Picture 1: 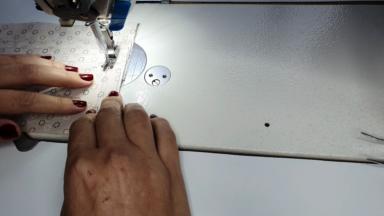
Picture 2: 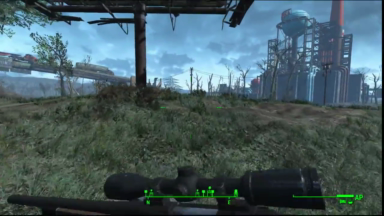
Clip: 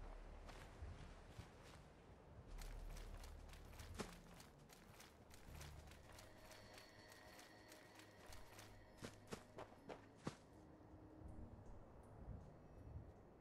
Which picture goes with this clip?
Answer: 2